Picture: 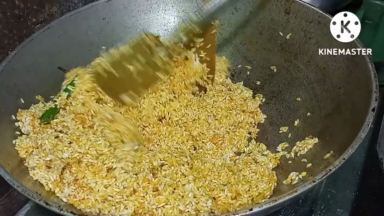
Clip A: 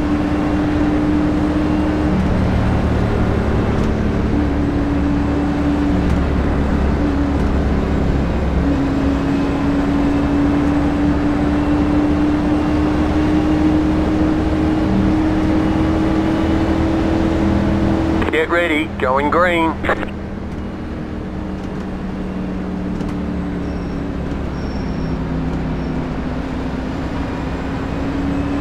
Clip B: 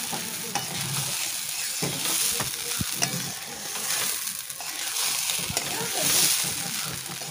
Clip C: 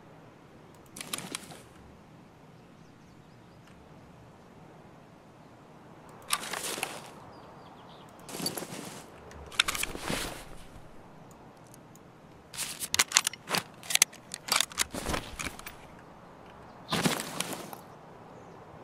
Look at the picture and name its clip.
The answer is B